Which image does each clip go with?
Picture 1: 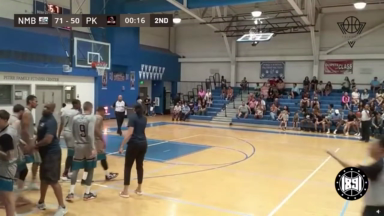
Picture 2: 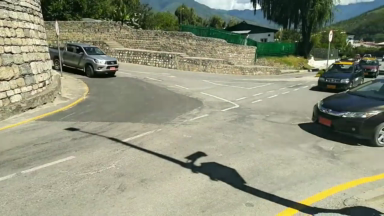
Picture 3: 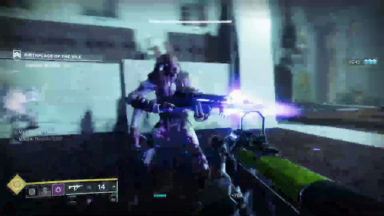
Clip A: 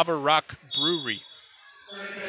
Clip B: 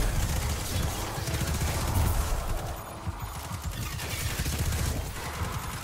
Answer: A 1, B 3